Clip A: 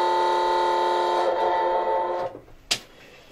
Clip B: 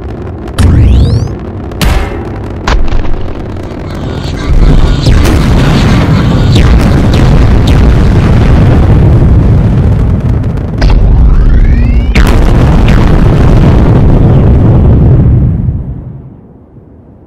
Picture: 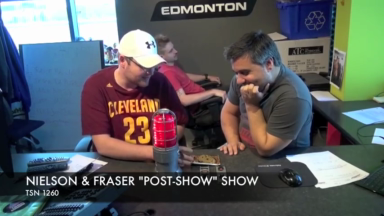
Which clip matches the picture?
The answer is A